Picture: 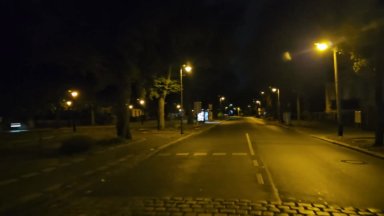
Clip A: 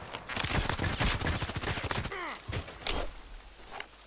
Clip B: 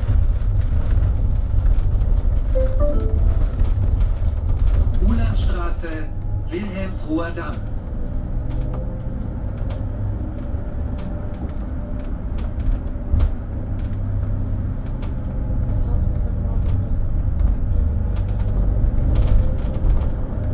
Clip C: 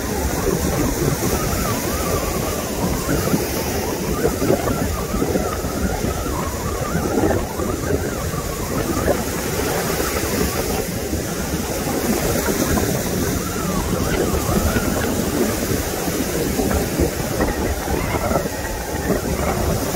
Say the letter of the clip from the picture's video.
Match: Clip B